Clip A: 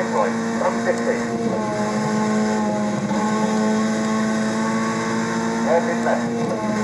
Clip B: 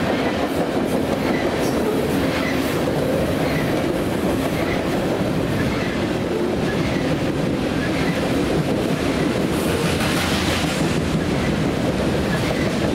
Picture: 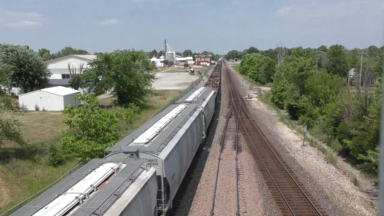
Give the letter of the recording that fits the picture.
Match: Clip B